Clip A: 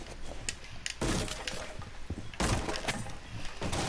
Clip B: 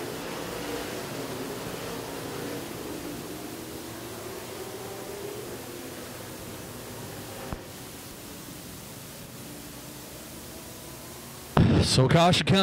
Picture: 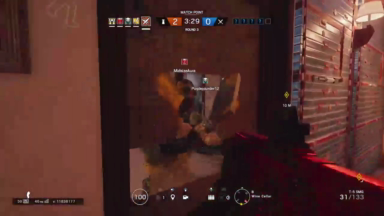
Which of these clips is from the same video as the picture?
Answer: A